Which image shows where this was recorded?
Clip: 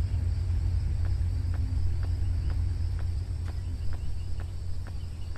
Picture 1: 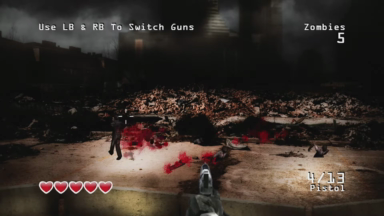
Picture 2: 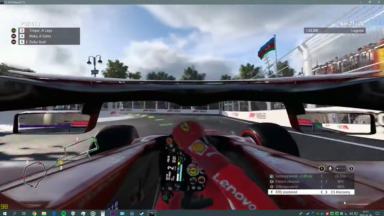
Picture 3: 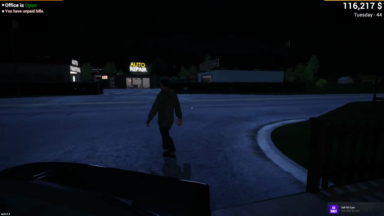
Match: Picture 3